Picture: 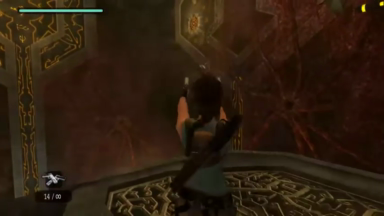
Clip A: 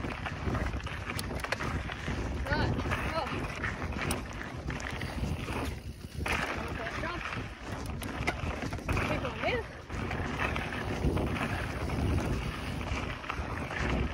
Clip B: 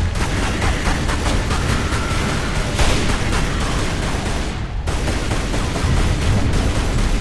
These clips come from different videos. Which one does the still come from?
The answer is B